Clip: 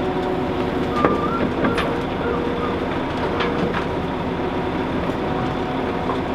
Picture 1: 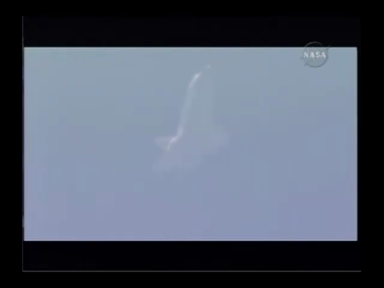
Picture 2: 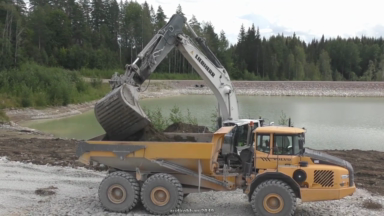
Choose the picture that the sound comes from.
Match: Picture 2